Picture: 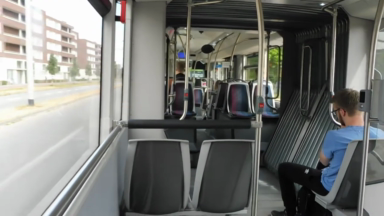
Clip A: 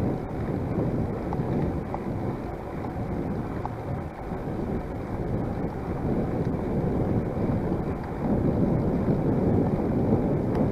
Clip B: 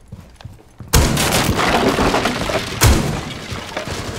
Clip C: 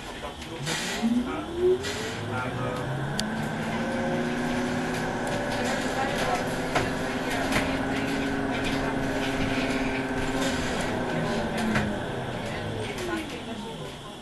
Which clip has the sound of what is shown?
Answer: C